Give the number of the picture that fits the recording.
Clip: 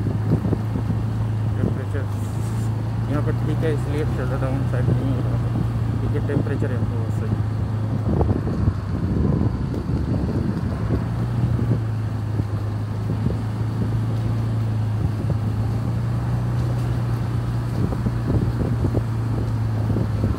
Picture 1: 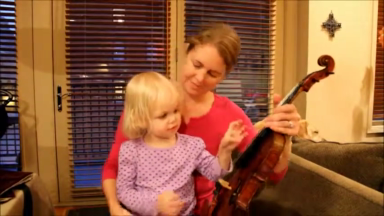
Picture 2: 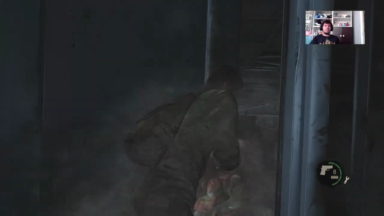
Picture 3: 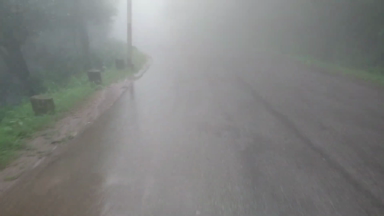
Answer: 3